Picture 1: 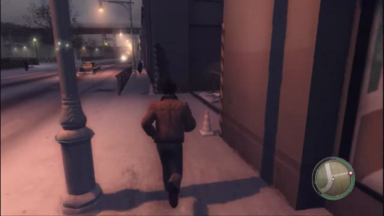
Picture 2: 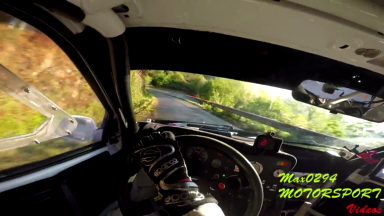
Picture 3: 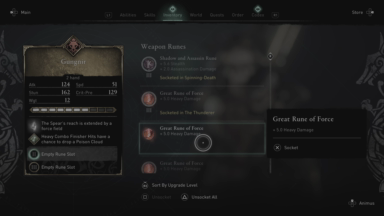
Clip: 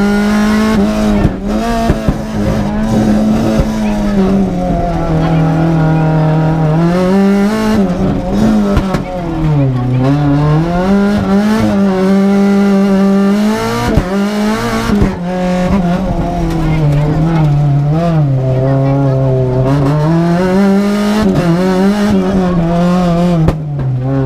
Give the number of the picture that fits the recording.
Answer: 2